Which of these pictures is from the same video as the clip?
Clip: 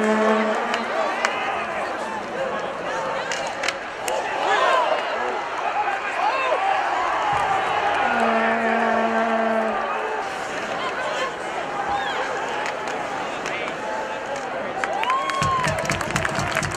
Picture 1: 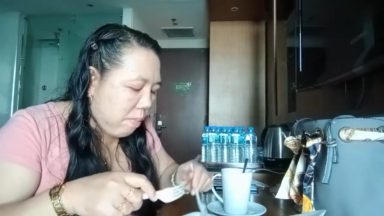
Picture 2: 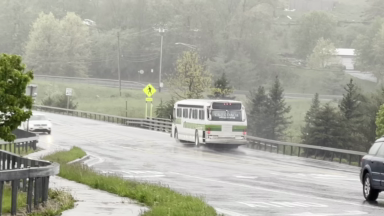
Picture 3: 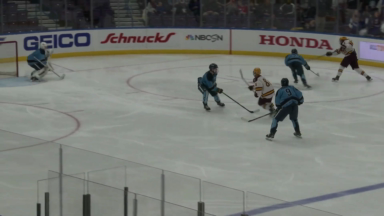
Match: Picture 3